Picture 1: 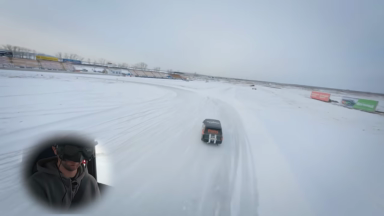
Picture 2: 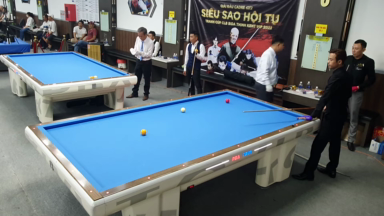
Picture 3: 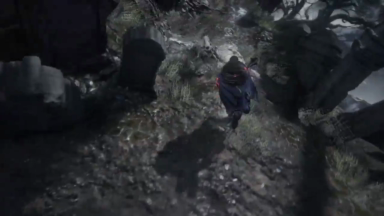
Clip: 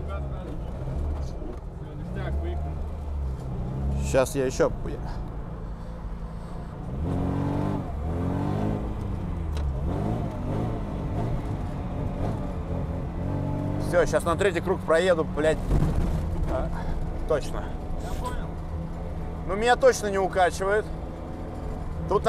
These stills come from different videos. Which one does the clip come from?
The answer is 1